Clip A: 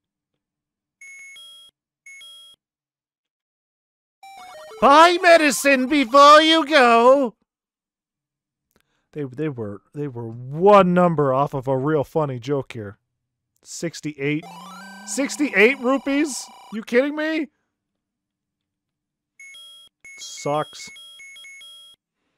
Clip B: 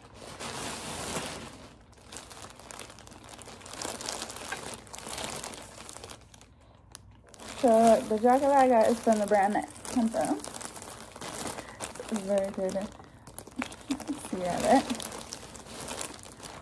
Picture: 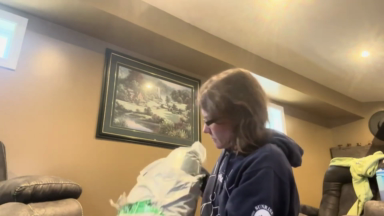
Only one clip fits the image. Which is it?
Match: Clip B